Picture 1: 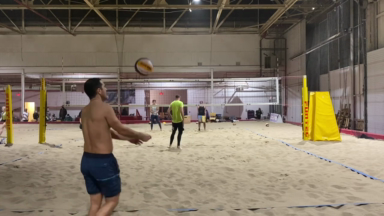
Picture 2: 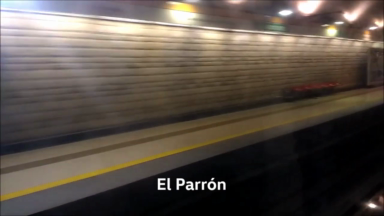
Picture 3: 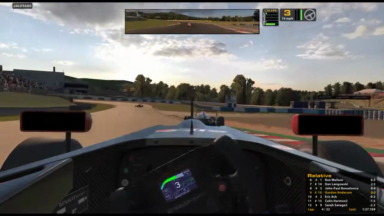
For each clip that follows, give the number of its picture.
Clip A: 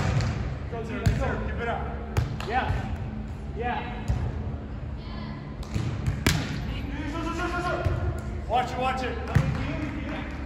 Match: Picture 1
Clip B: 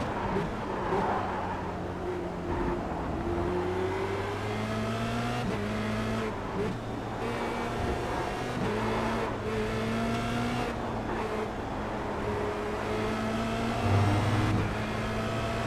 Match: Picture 3